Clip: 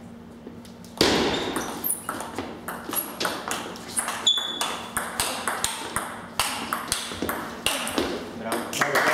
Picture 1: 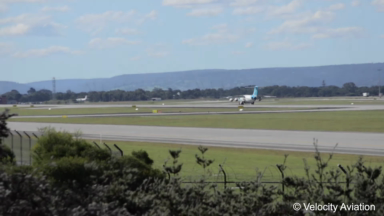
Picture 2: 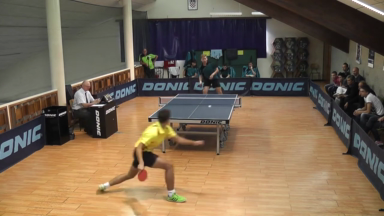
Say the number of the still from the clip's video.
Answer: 2